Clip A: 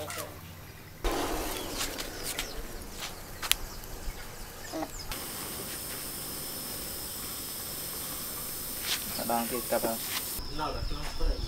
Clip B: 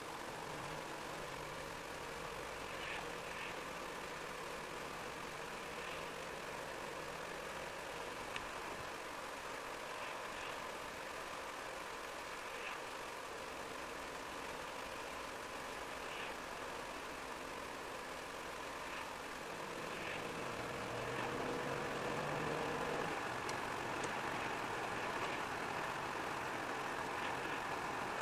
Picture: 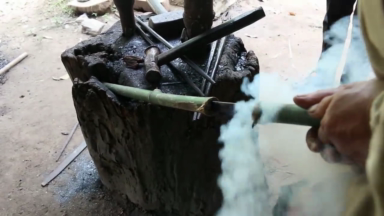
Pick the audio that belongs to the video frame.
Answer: A